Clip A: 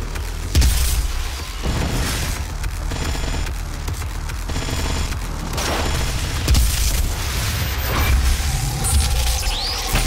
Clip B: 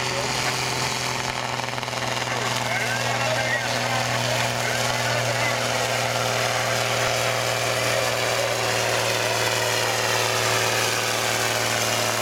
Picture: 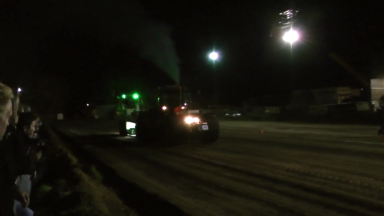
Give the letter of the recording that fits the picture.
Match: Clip B